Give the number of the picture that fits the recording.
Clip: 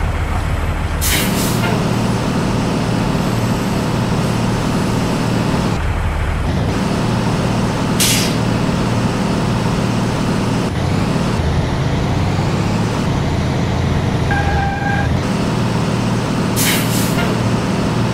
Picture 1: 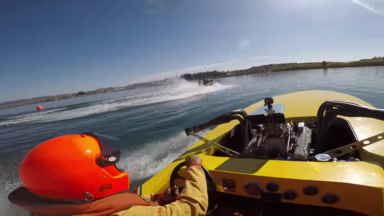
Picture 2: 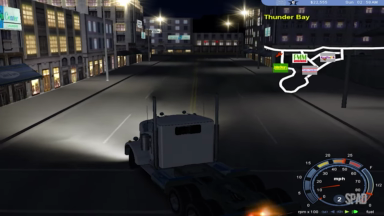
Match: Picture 2